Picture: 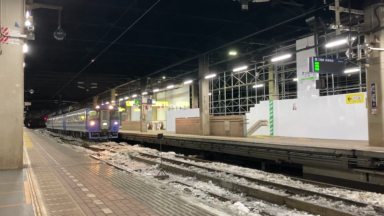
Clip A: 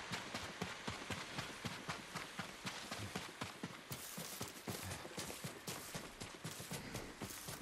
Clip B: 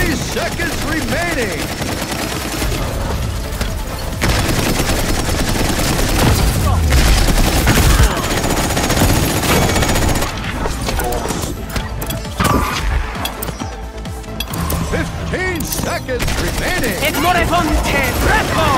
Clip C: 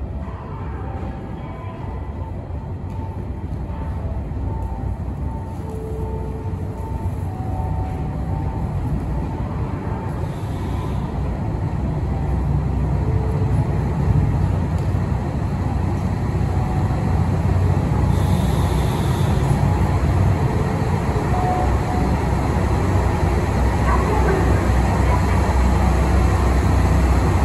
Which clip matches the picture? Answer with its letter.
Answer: C